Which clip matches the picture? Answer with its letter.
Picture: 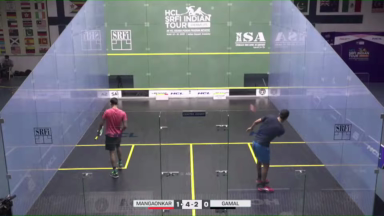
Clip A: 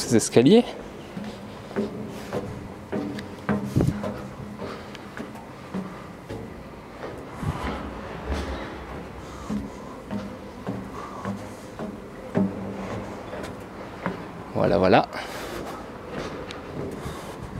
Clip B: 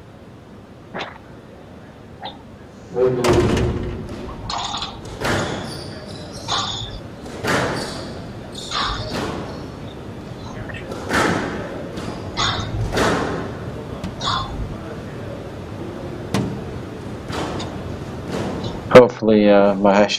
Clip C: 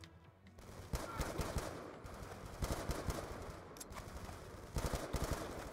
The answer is B